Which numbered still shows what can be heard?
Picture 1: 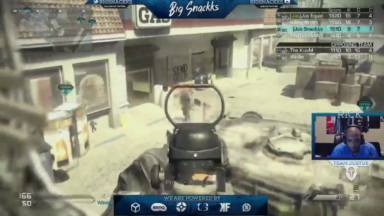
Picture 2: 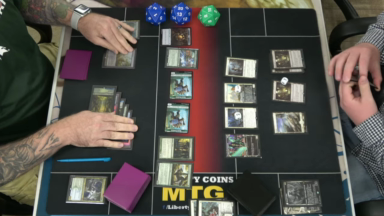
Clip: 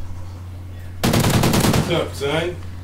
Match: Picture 1